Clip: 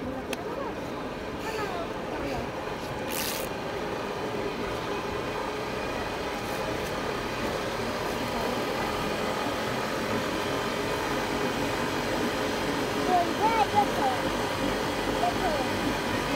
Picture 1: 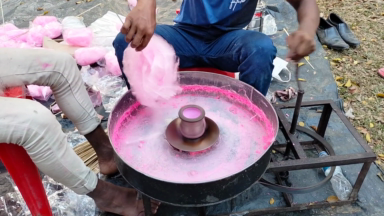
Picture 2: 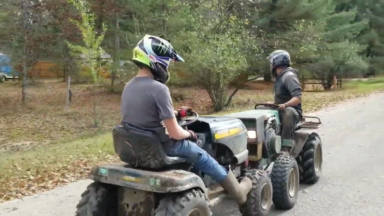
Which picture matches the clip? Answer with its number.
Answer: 1